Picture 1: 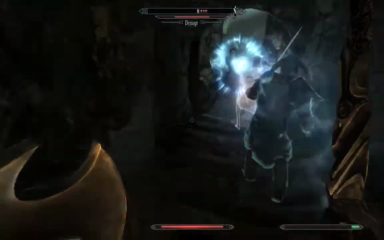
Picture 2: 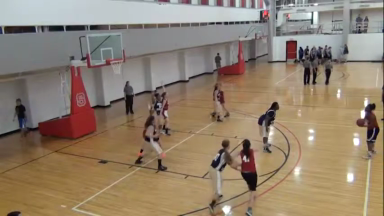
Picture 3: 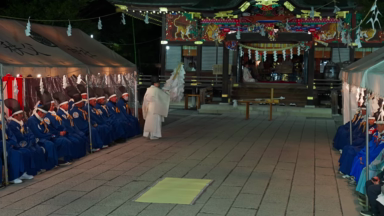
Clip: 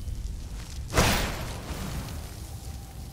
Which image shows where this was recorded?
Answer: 1